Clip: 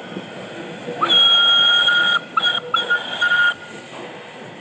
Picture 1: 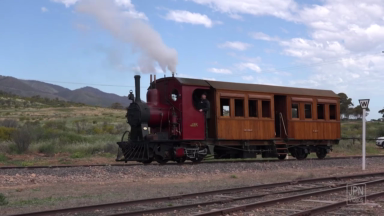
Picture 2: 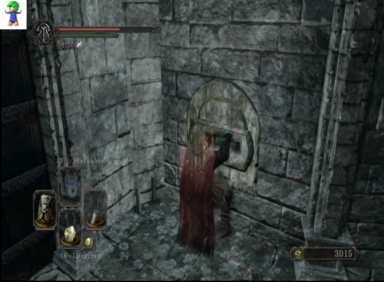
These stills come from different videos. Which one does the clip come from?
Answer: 1